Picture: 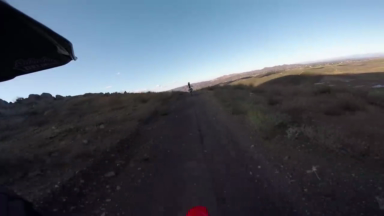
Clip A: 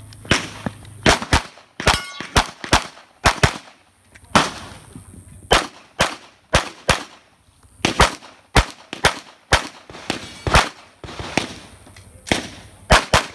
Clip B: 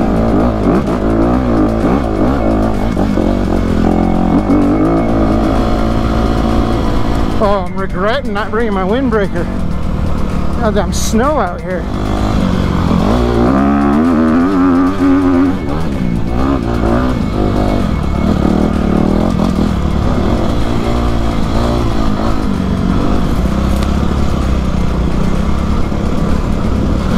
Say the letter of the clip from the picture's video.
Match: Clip B